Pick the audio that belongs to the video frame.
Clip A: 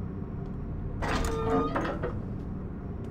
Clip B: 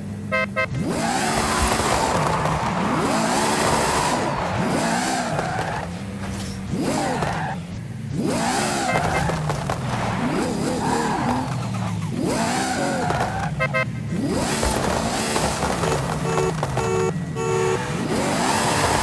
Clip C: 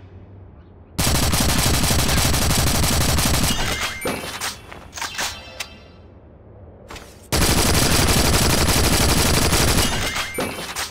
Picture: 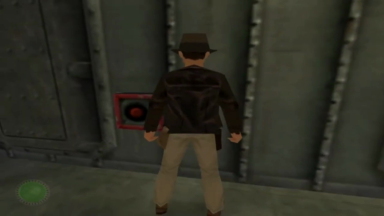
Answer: A